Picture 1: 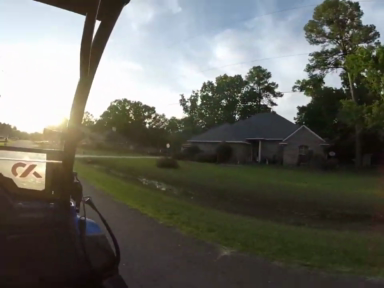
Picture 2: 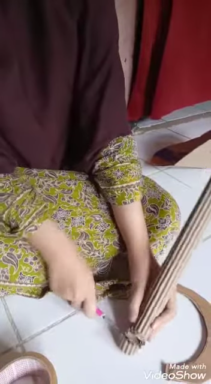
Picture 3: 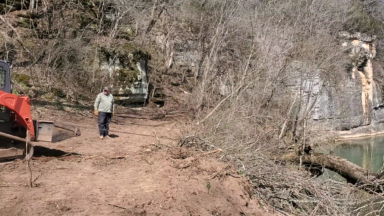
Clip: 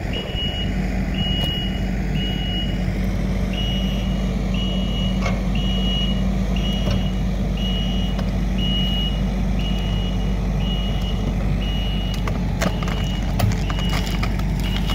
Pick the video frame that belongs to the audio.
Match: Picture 3